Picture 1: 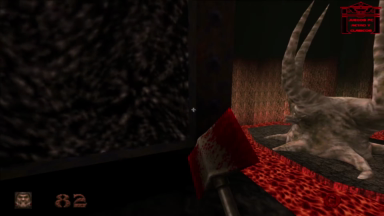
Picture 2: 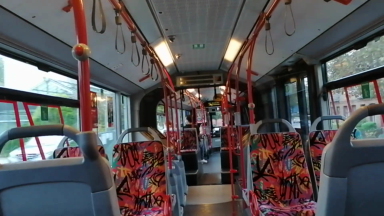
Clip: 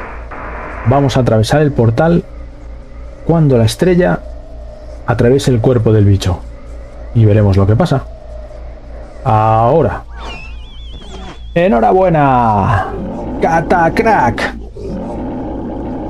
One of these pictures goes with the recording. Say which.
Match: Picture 1